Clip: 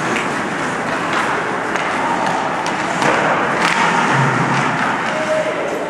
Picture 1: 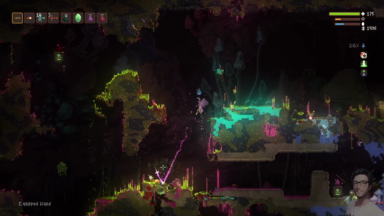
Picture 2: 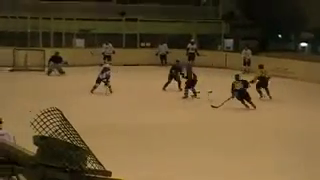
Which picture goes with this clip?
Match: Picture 2